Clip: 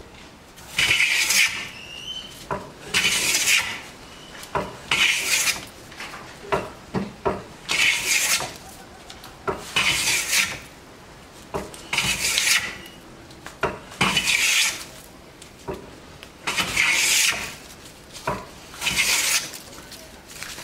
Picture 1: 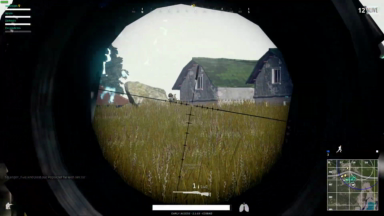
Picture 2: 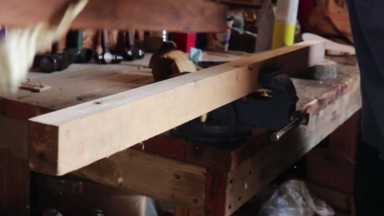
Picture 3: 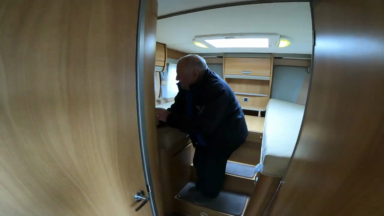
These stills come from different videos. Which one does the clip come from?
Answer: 2